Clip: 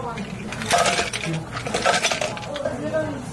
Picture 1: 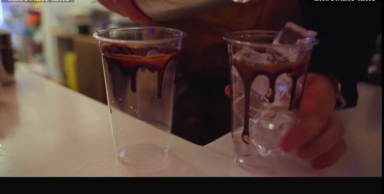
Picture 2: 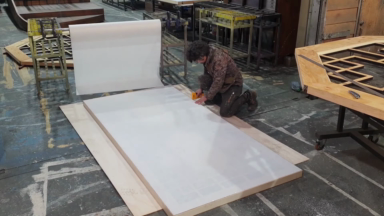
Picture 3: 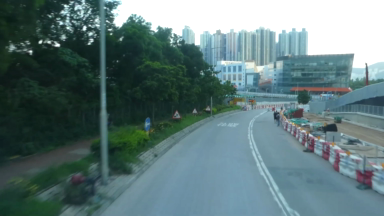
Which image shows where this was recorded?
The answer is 1